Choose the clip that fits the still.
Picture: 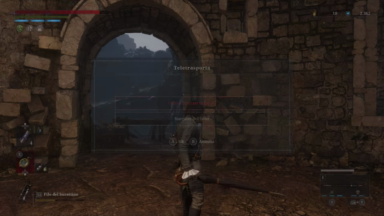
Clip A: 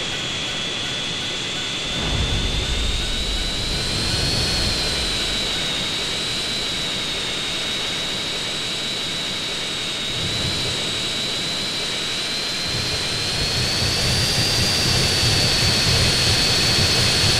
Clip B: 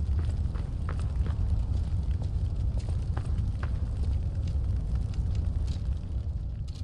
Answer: B